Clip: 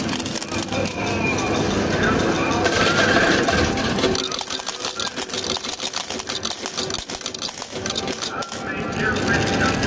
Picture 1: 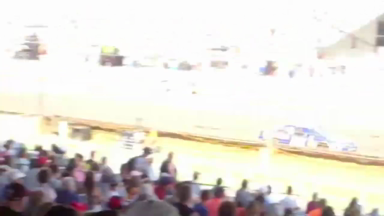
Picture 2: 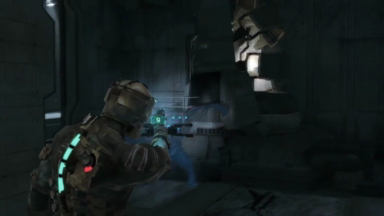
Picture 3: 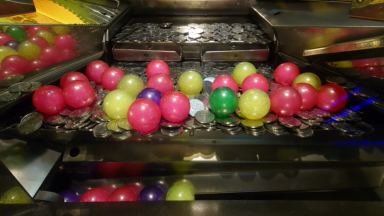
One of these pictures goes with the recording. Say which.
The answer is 3